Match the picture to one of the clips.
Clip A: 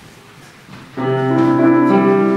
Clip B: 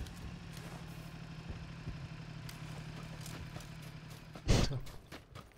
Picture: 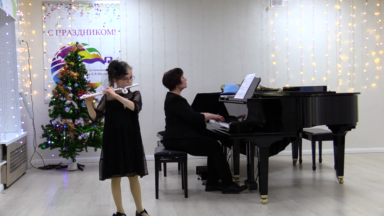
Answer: A